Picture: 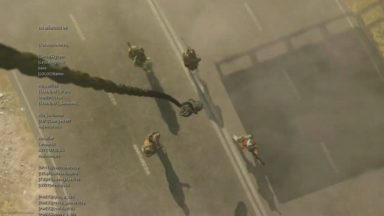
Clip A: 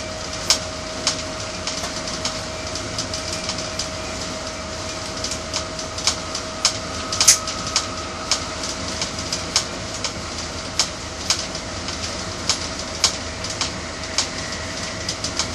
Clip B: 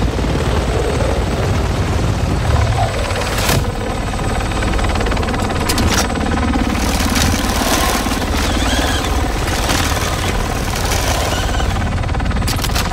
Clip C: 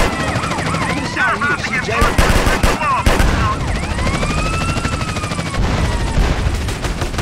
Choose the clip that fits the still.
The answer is B